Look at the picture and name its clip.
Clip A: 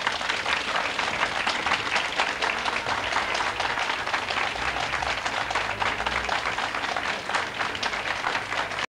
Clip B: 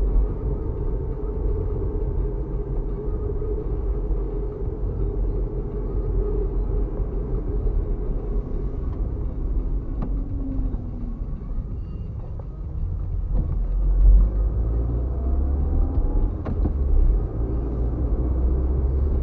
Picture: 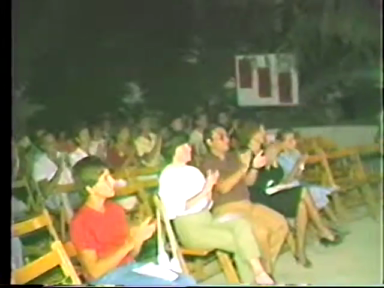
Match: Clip A